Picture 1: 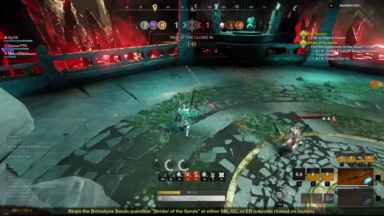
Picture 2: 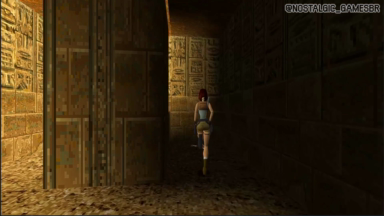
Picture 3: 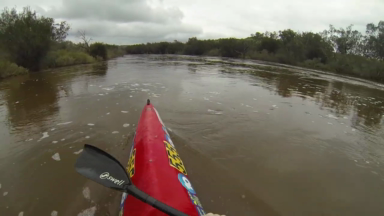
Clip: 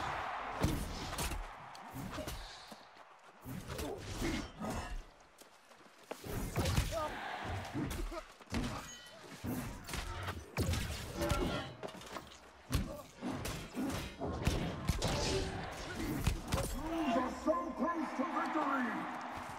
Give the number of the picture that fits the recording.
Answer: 1